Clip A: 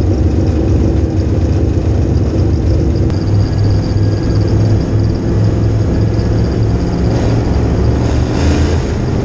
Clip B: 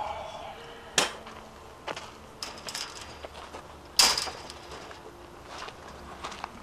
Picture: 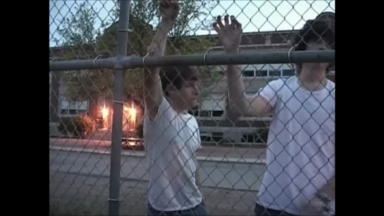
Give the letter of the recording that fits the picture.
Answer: B